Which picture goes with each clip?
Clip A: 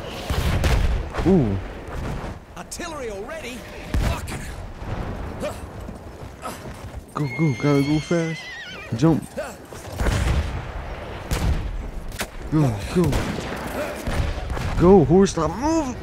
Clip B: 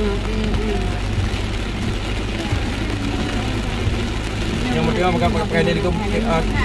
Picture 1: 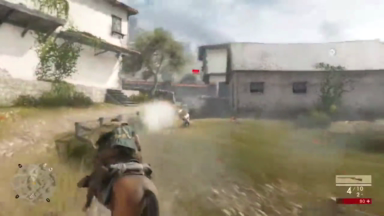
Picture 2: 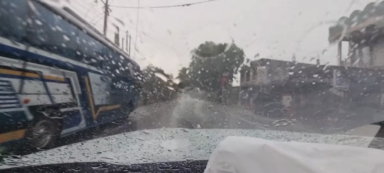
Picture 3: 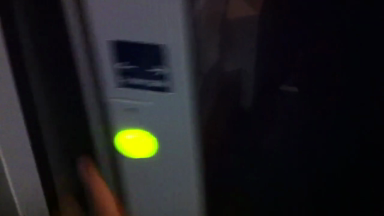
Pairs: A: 1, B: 2